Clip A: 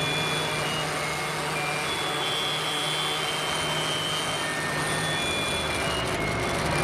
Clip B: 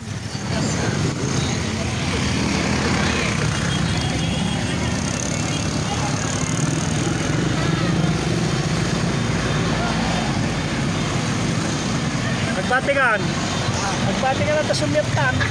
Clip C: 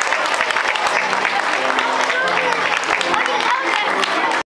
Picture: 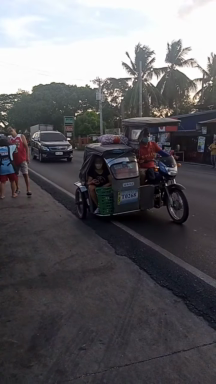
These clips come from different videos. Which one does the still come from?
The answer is B